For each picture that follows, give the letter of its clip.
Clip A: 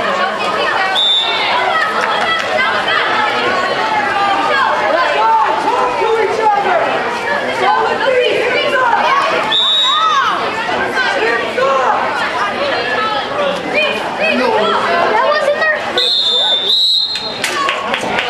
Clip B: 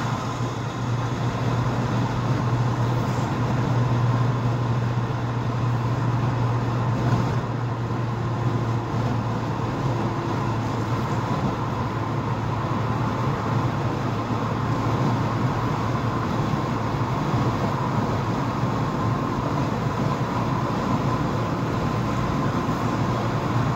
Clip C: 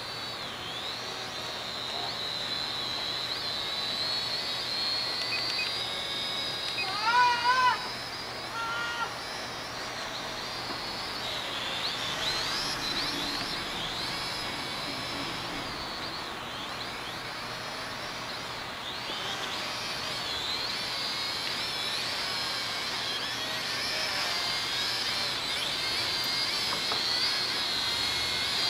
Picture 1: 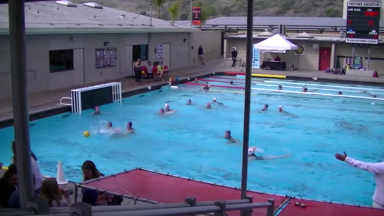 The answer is A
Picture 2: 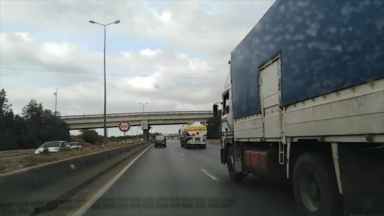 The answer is B